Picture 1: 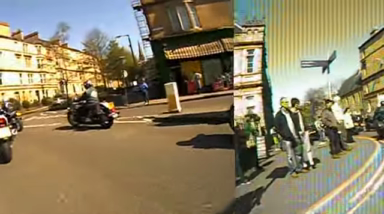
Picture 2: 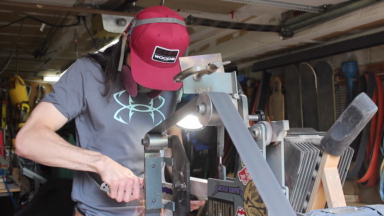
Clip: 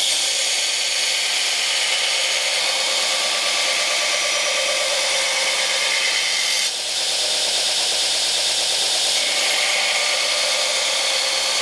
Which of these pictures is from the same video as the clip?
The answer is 2